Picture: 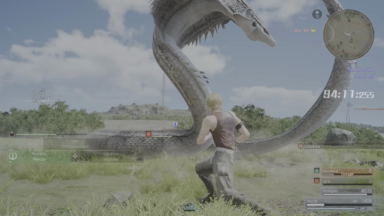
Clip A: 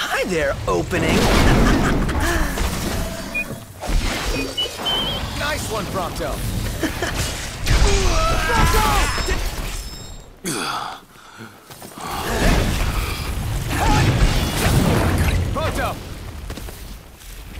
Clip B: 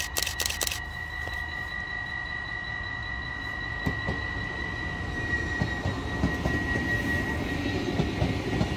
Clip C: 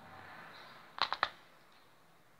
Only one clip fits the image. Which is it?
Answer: A